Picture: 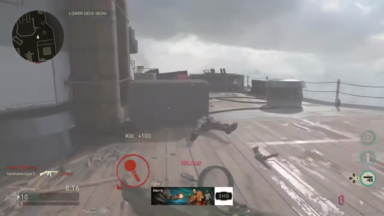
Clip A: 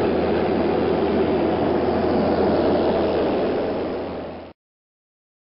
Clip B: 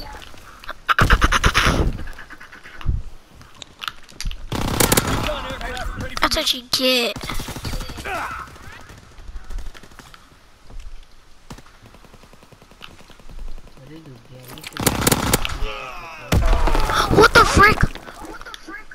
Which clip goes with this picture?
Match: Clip B